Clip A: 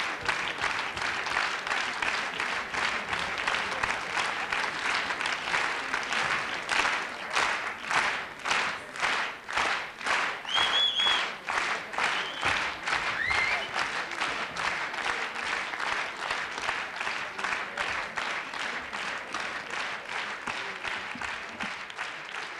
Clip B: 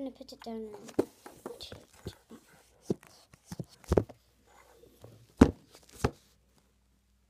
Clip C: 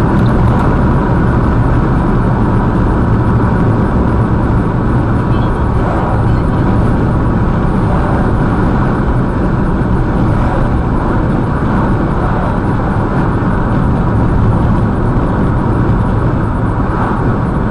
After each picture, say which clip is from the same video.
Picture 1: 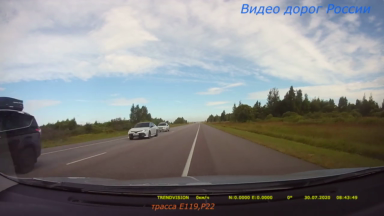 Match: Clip C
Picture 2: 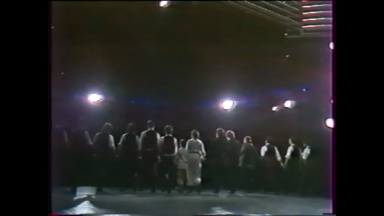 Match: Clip A